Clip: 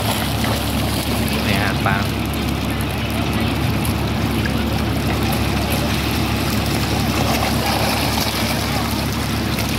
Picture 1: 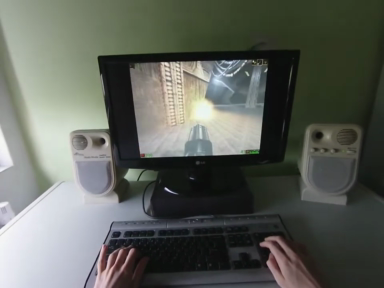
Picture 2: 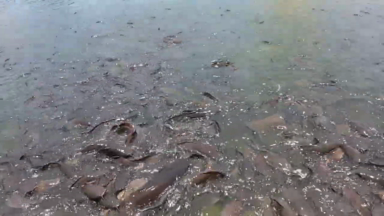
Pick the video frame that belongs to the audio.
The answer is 2